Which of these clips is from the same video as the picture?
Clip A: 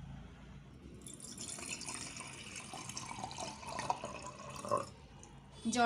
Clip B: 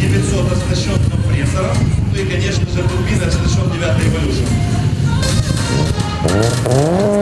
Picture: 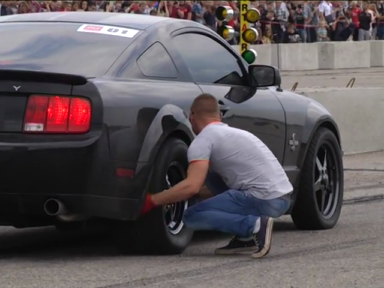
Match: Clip B